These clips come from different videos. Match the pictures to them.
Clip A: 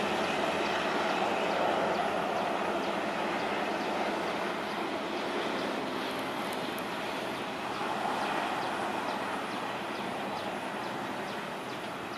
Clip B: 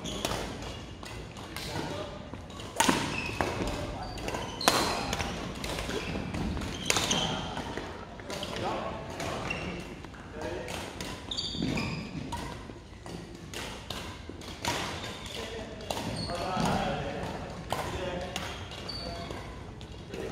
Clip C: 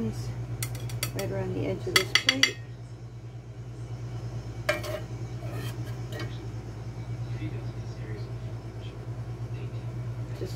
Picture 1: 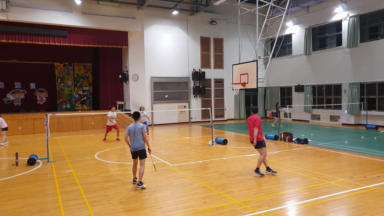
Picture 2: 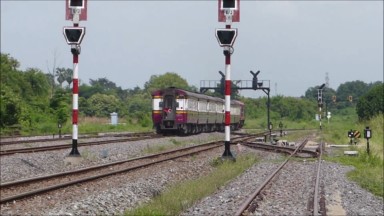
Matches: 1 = B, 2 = A